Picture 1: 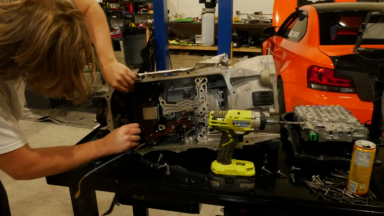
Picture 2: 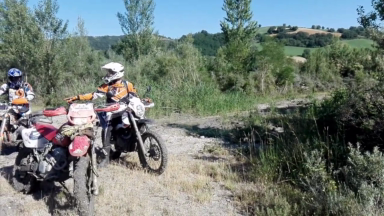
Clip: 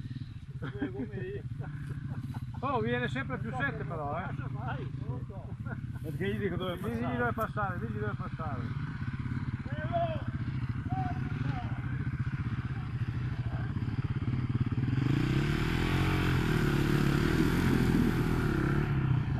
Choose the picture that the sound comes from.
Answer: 2